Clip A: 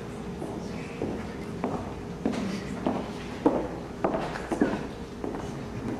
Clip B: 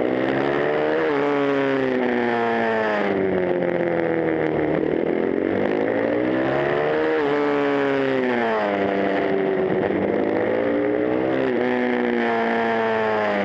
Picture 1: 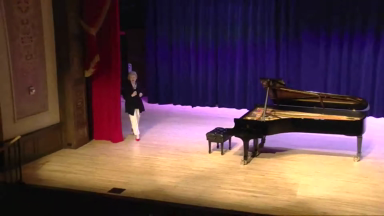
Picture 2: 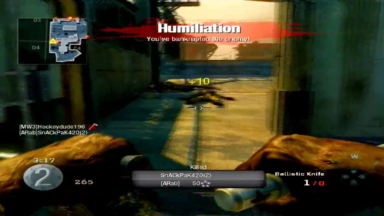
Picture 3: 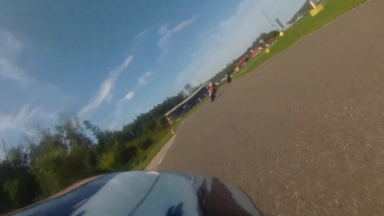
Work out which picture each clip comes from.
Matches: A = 1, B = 3